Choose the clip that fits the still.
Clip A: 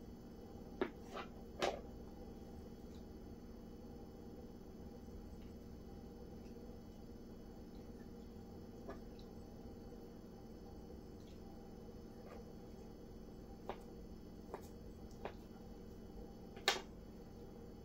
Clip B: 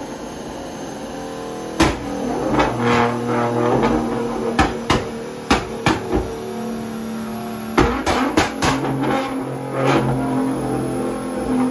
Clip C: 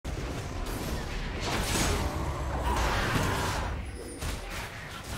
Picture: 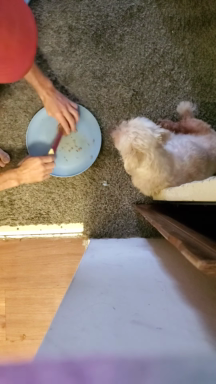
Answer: A